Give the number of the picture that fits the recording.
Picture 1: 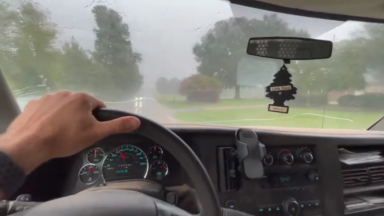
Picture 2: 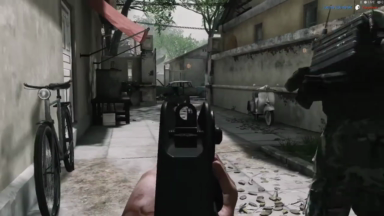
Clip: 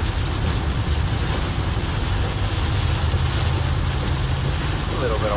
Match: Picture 1